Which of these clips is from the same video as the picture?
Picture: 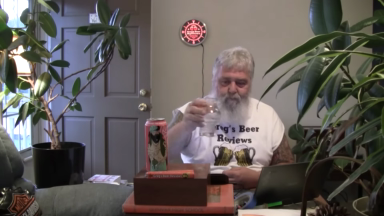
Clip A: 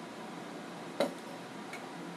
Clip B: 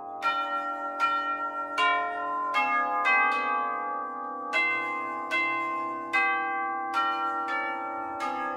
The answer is A